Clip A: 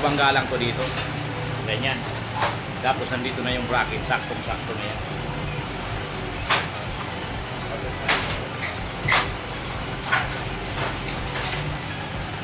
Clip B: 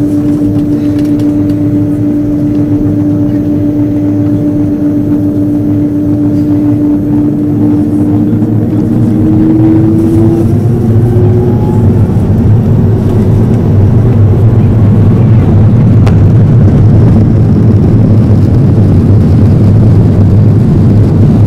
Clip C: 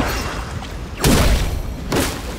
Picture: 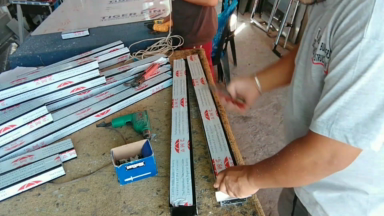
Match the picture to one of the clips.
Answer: A